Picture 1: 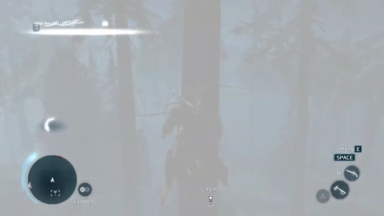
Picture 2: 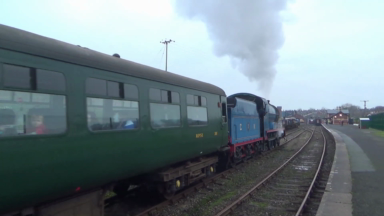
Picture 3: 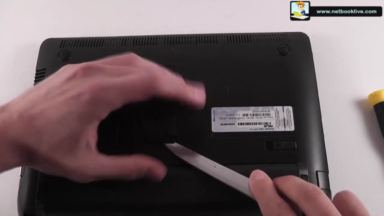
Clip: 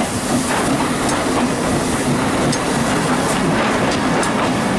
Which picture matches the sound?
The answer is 2